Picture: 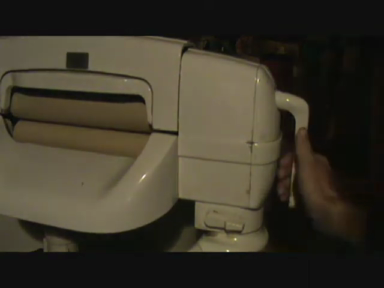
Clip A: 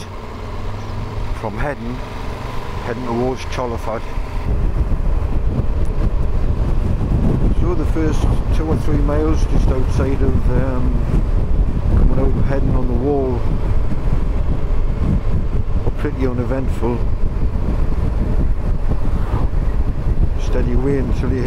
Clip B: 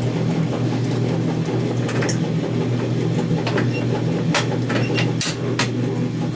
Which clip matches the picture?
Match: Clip B